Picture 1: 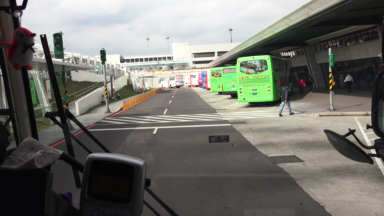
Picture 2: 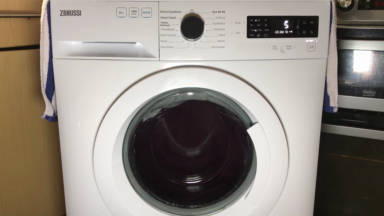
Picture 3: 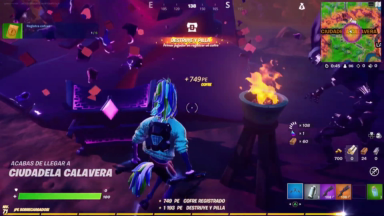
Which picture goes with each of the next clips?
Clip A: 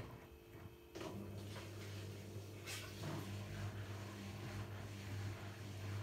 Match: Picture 2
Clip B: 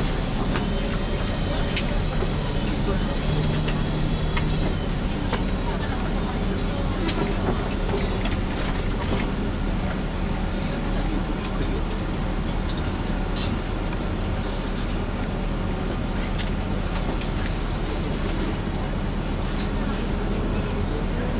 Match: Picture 1